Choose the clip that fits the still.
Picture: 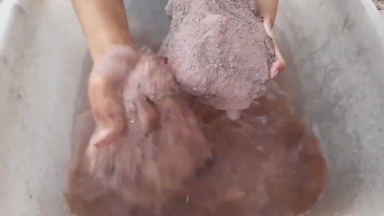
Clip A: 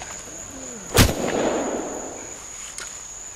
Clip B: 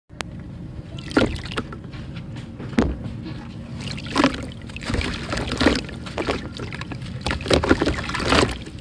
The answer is B